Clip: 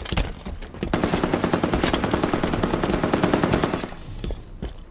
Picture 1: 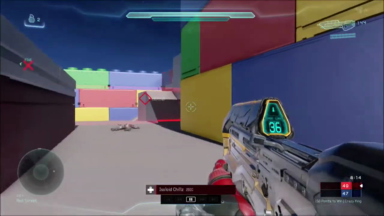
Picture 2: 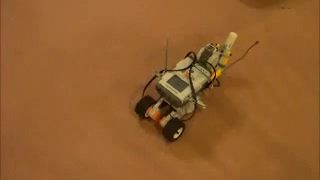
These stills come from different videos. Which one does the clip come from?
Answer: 1